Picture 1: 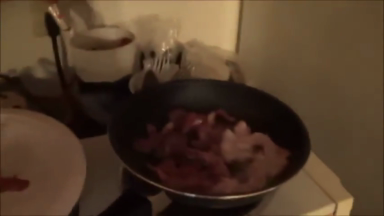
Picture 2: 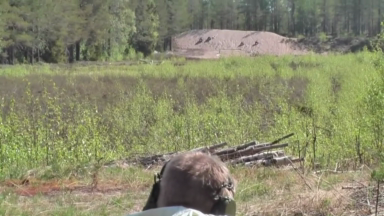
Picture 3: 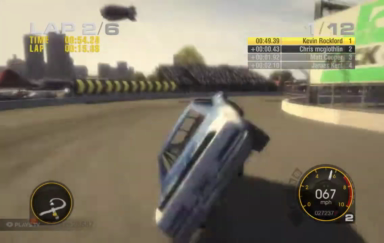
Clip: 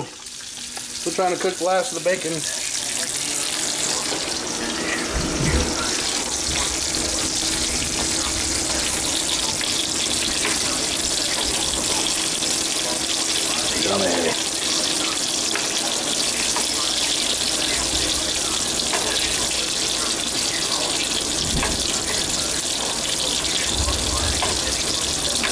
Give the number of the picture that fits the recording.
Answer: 1